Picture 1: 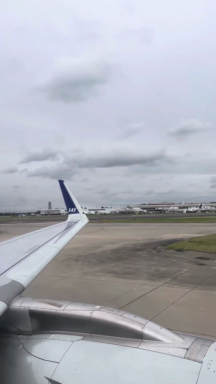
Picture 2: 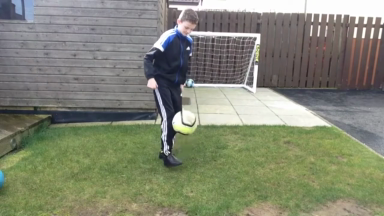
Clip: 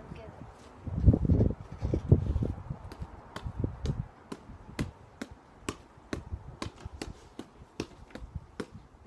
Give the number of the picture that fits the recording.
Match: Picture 2